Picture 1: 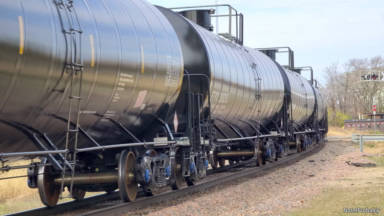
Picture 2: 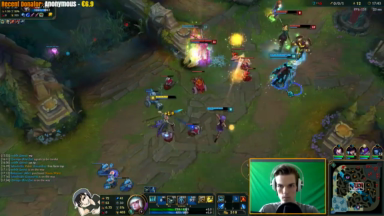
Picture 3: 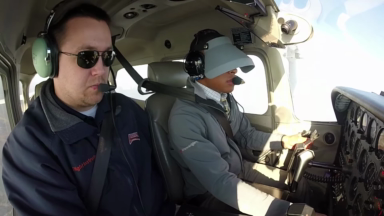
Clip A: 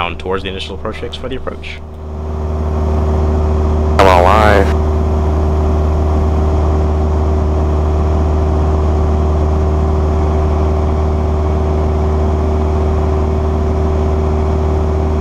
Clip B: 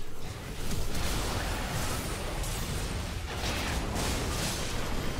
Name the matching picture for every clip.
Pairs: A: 3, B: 2